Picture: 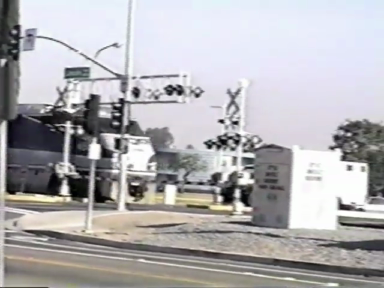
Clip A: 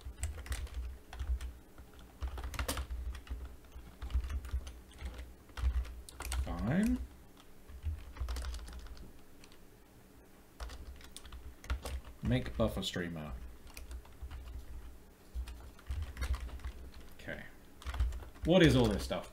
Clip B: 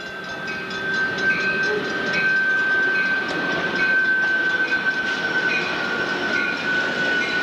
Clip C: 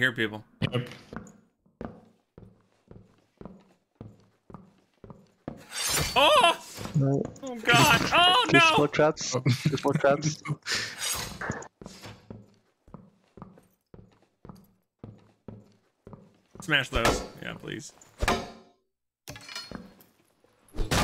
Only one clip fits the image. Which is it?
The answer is B